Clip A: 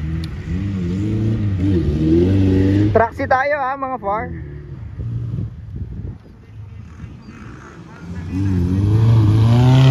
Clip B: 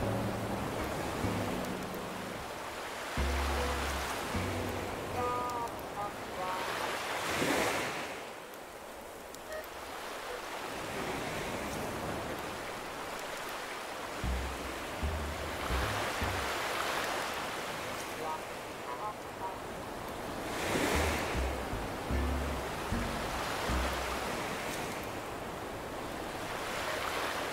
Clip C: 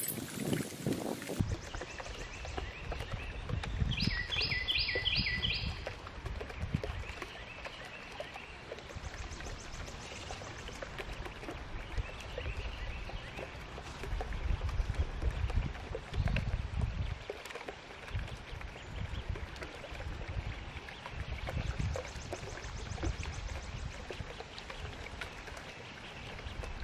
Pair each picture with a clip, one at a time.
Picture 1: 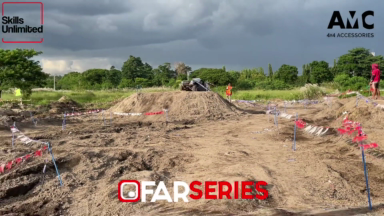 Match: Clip A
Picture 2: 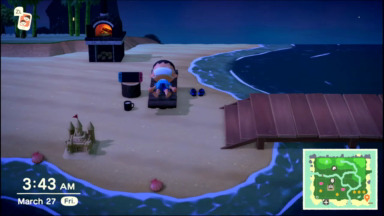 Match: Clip B